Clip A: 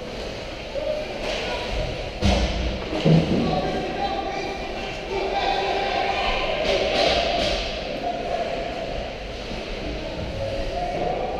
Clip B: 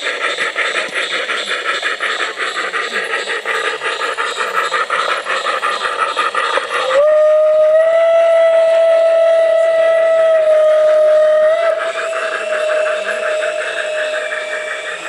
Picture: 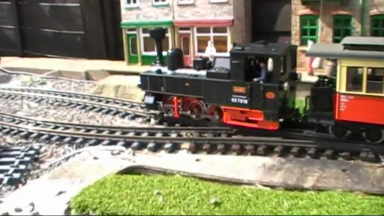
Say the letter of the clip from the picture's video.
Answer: B